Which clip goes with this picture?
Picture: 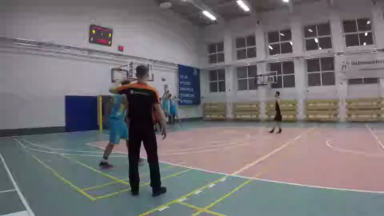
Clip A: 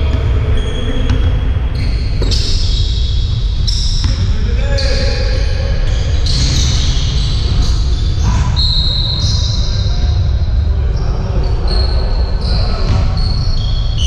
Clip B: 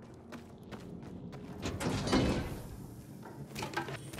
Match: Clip A